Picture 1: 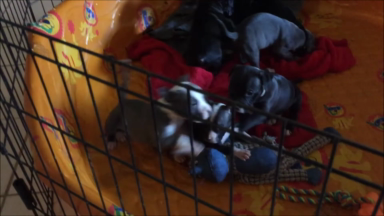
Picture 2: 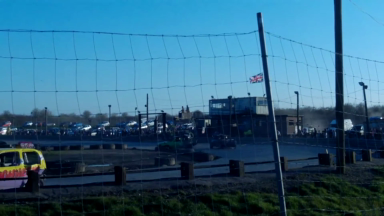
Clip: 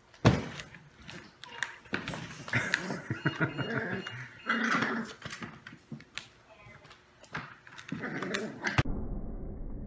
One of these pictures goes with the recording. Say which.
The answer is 1